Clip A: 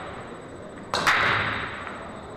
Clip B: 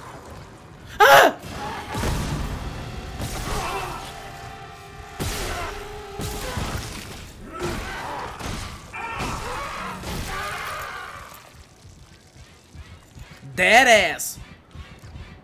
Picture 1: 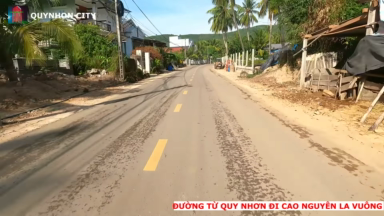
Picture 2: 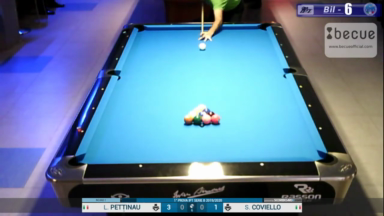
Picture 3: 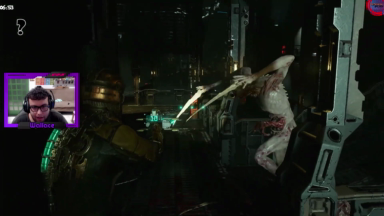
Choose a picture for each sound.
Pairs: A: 2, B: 3